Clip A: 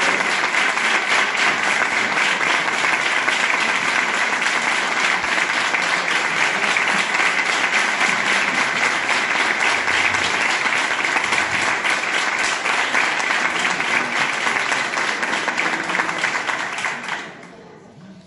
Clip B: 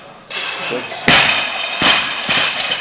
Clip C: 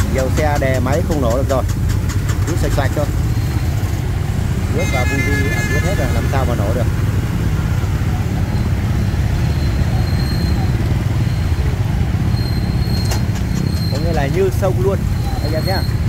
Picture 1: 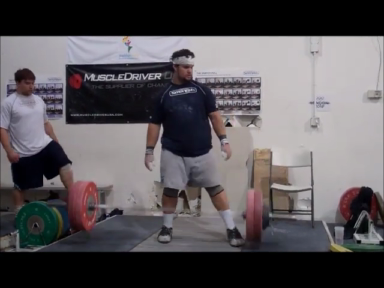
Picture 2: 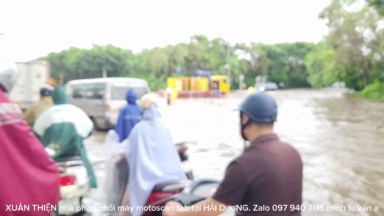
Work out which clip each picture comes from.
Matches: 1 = B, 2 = C